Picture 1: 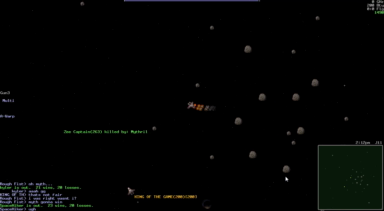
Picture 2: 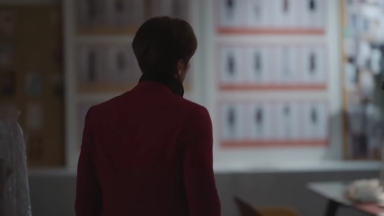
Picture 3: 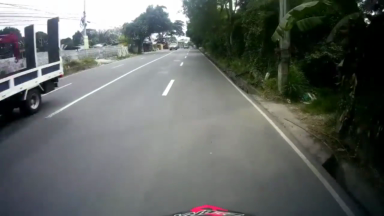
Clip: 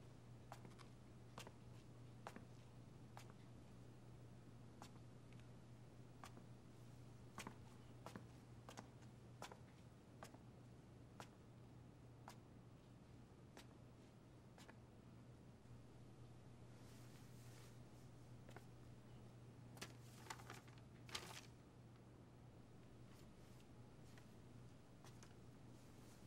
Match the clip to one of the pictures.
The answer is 2